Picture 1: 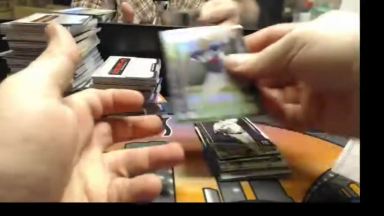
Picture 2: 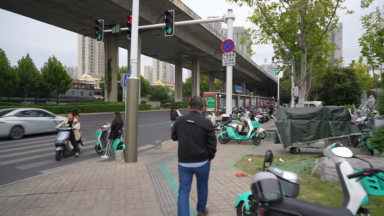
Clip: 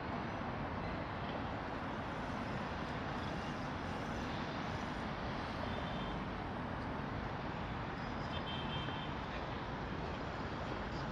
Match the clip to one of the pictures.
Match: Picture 2